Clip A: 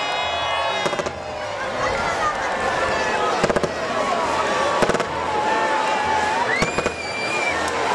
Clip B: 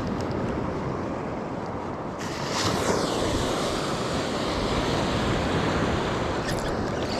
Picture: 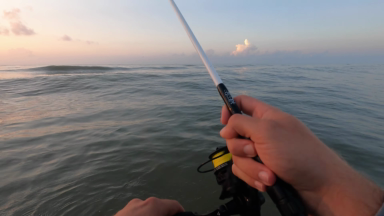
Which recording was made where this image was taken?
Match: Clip B